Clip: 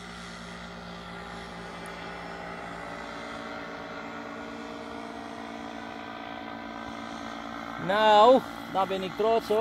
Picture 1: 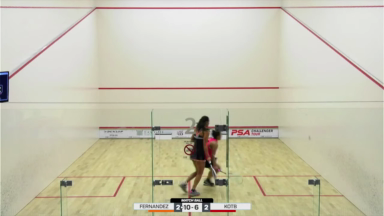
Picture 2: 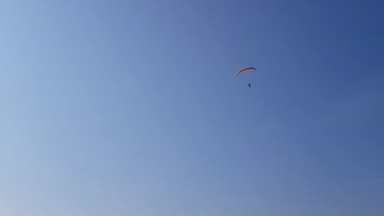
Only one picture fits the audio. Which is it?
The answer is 2